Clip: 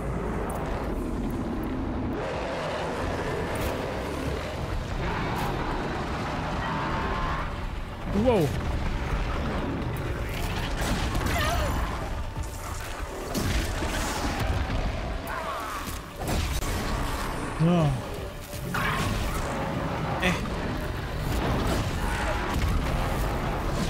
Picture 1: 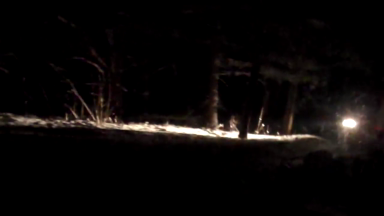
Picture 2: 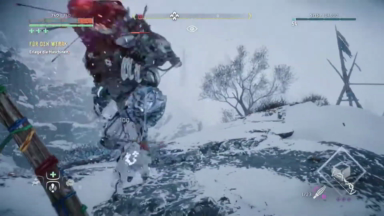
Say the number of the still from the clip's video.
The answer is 2